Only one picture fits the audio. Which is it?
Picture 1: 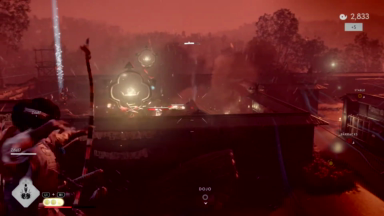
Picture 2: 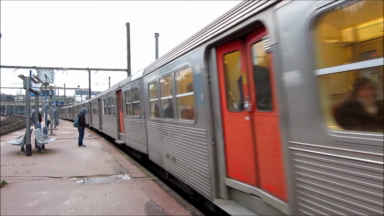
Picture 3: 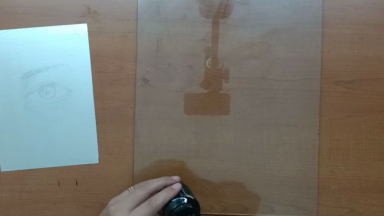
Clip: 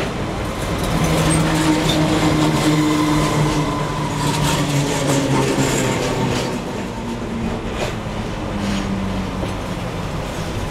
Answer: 2